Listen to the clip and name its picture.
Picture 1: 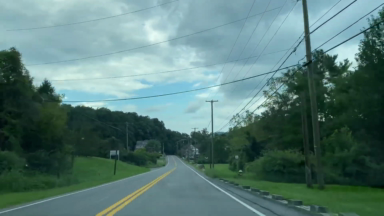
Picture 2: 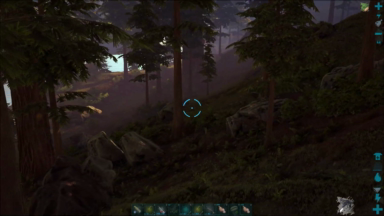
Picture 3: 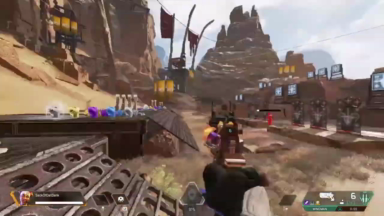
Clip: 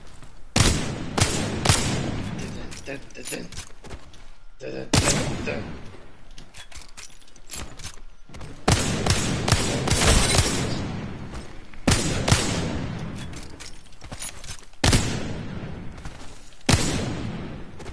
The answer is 3